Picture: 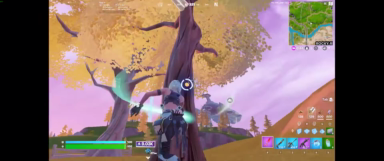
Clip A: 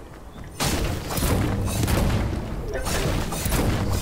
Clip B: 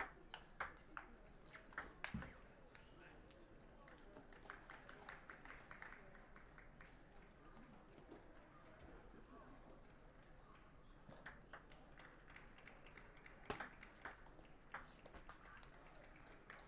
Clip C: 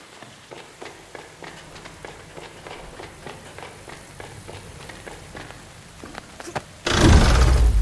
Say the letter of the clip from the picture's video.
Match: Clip A